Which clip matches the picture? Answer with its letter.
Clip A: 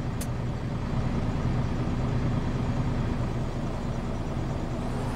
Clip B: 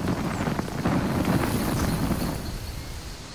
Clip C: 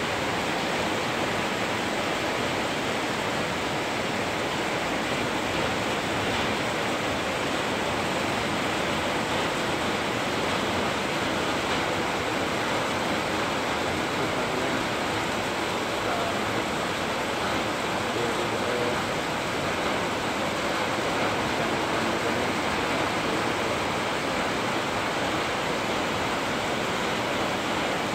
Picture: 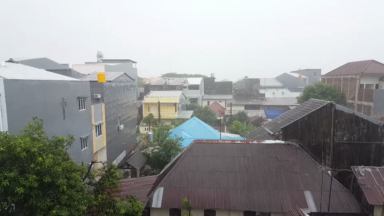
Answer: C